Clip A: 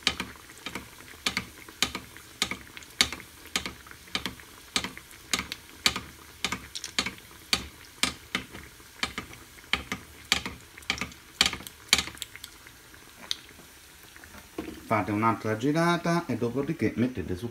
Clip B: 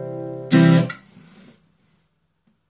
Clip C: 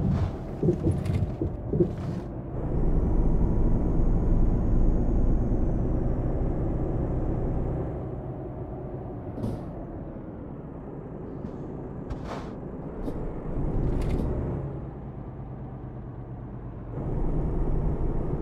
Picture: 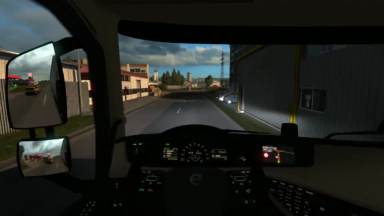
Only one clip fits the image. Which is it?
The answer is C